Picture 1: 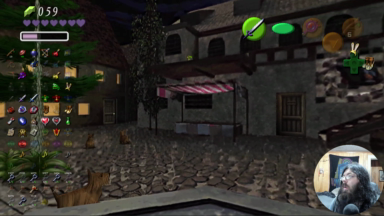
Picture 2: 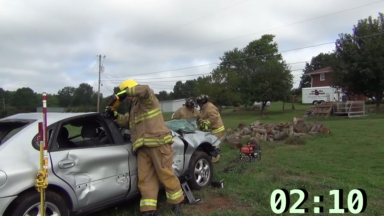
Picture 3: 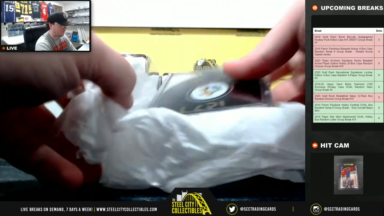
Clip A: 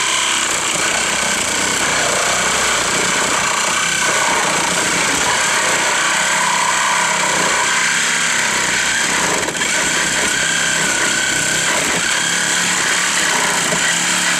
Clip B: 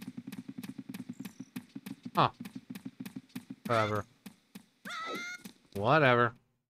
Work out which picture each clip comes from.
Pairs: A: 2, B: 1